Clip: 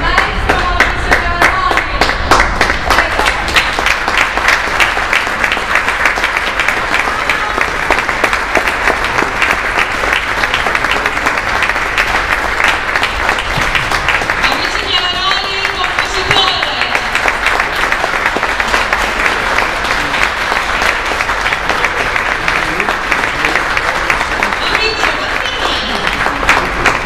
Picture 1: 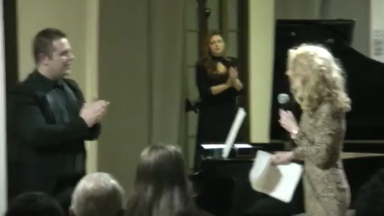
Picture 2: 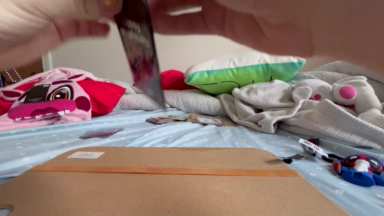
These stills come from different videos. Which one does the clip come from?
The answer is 1